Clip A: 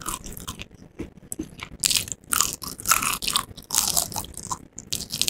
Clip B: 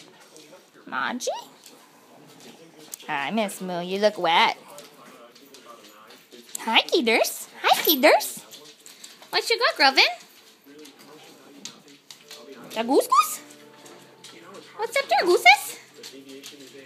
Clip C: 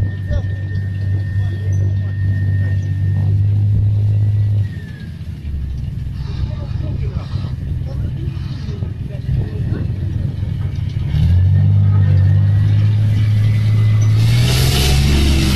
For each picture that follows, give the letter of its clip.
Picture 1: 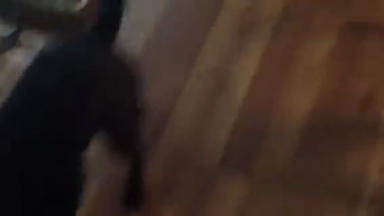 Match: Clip B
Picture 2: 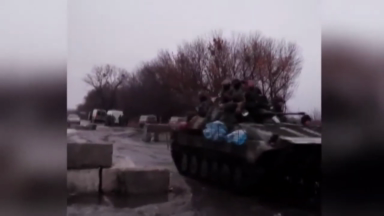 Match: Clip C